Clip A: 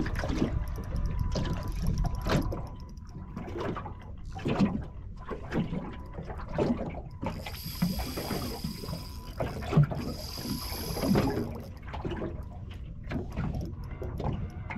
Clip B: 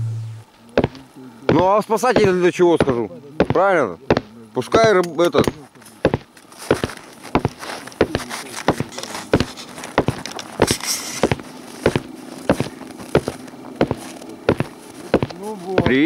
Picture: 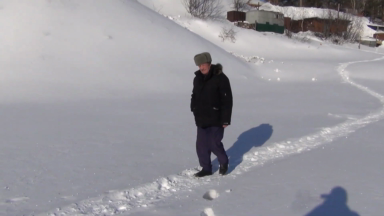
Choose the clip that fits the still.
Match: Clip B